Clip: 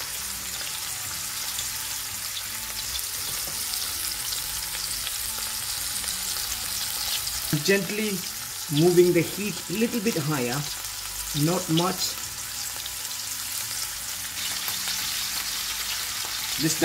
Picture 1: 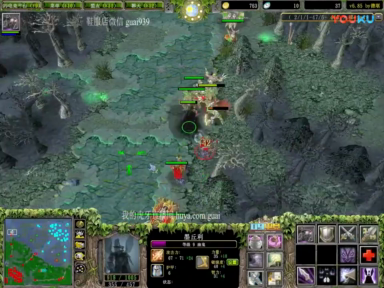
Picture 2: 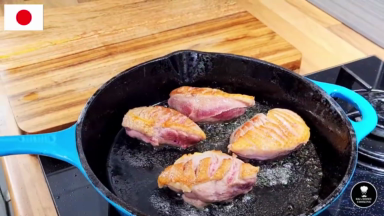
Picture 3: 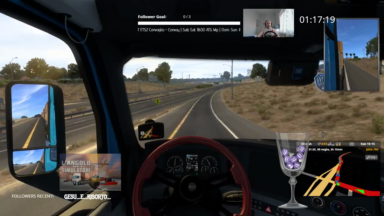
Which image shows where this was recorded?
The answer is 2